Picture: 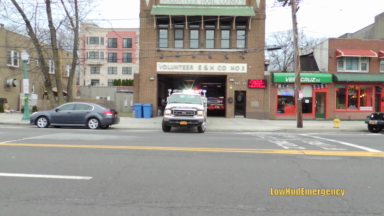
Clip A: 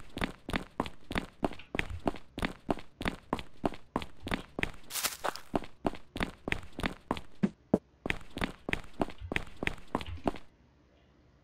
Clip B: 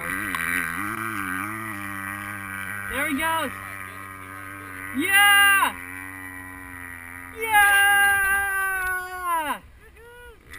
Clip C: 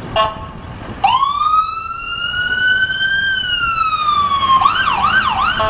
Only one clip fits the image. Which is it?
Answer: C